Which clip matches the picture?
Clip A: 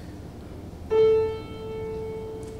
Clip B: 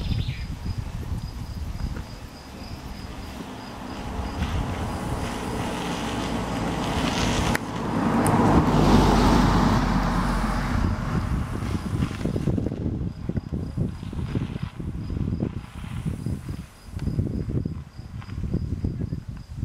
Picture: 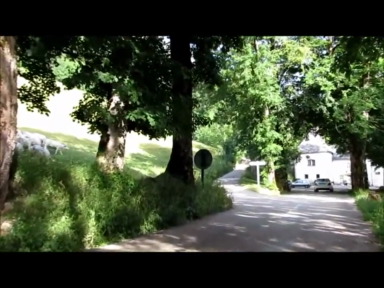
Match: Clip B